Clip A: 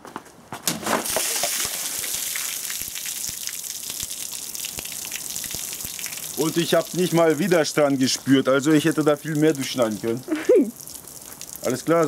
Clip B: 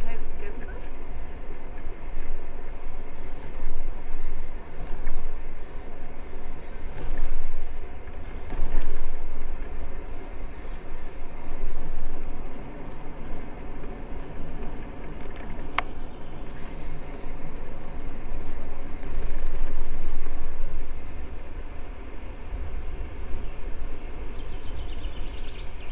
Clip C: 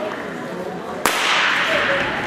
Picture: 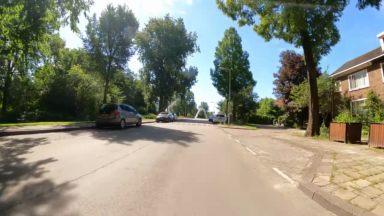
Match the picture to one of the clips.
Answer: B